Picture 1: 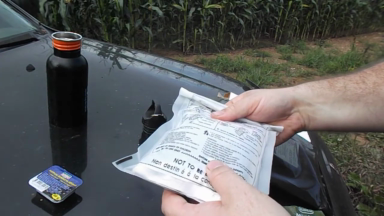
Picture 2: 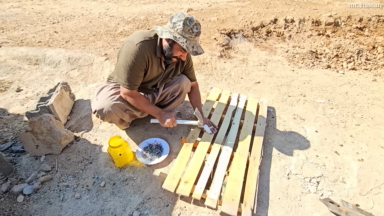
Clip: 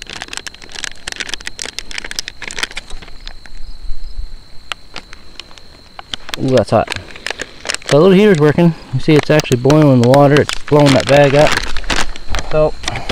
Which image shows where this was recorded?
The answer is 1